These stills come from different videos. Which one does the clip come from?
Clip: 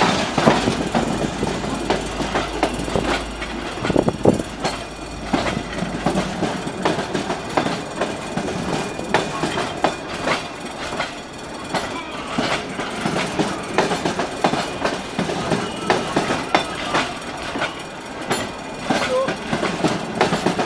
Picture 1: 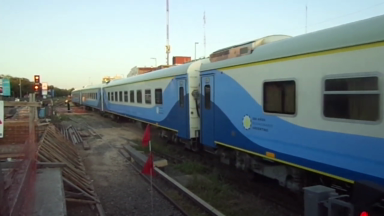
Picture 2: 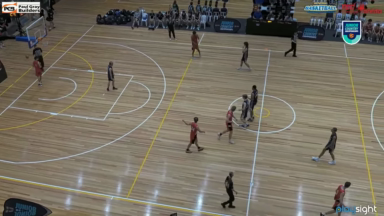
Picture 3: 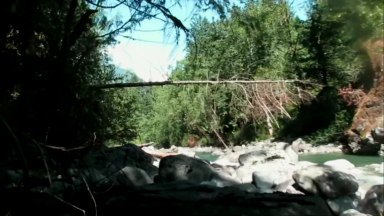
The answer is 1